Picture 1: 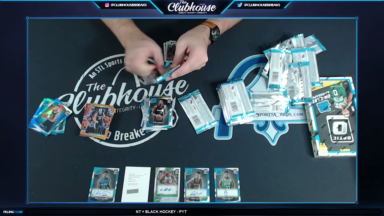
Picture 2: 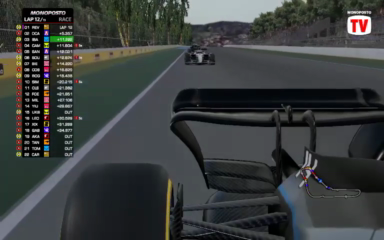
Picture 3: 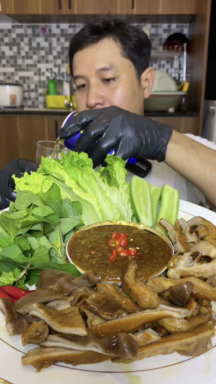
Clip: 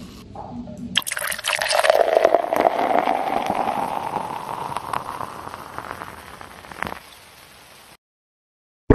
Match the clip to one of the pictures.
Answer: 3